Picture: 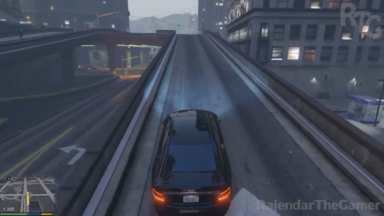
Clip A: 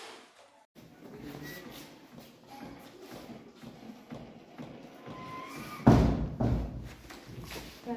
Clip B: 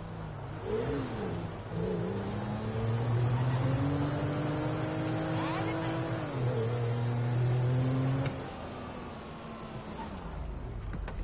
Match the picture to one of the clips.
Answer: B